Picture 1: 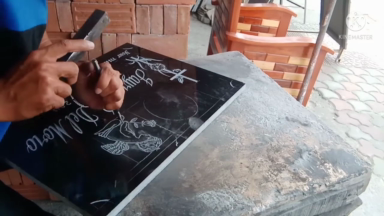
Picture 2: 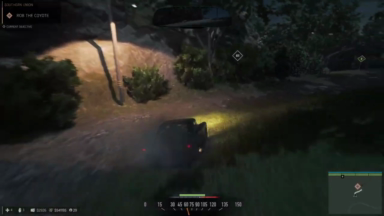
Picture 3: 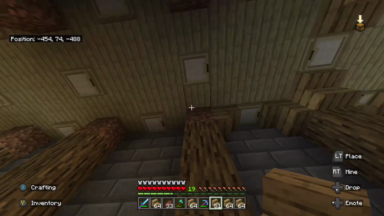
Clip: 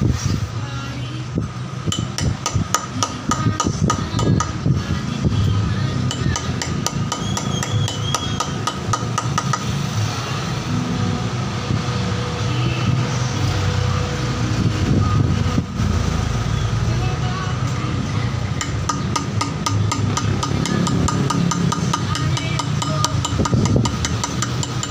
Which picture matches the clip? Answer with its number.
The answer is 1